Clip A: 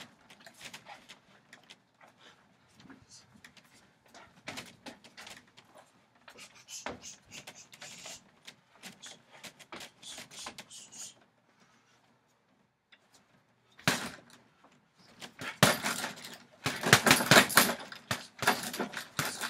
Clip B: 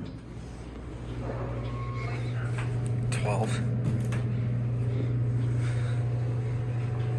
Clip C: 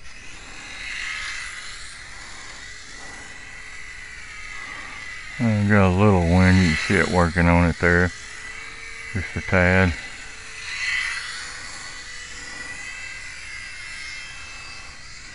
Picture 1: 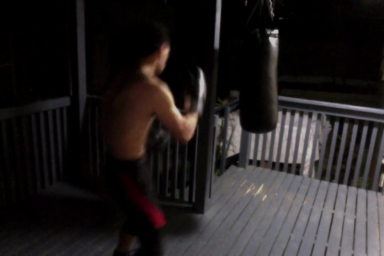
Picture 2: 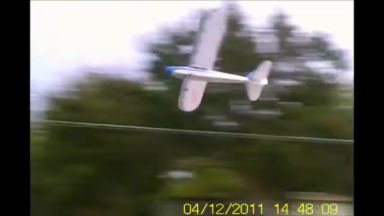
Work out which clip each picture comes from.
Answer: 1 A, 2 C